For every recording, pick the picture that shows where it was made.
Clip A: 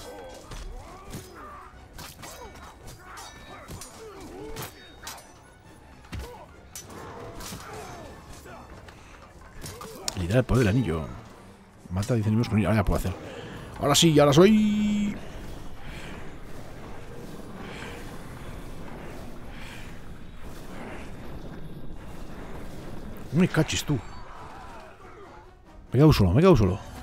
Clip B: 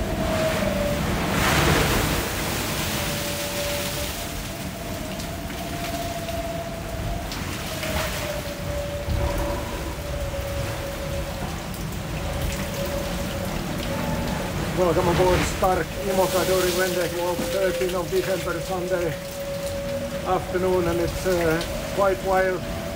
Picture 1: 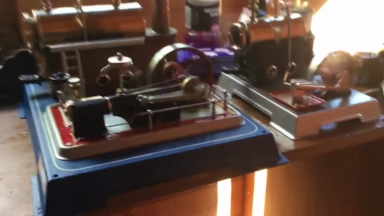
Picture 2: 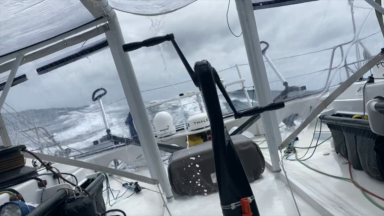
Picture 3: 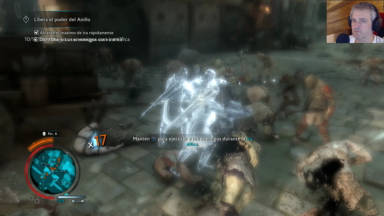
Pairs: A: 3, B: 2